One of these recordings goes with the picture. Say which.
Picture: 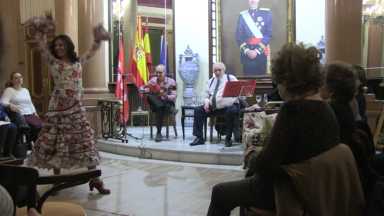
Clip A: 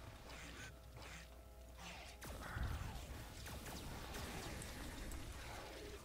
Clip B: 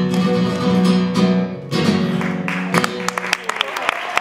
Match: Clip B